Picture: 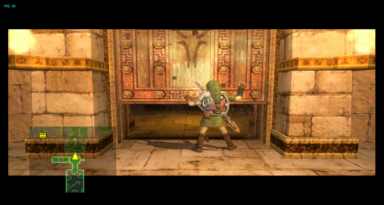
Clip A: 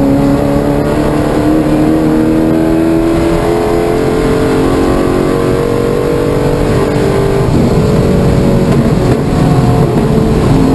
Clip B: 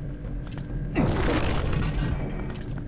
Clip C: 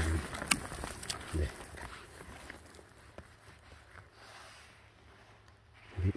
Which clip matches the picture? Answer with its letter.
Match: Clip B